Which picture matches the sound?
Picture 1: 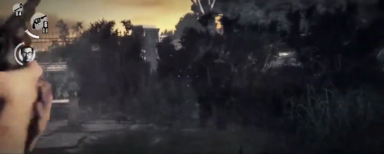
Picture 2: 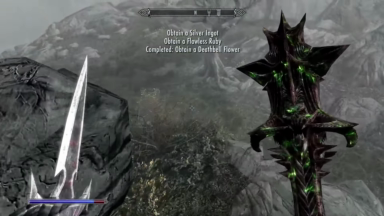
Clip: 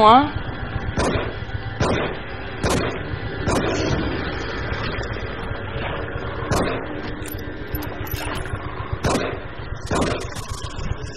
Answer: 1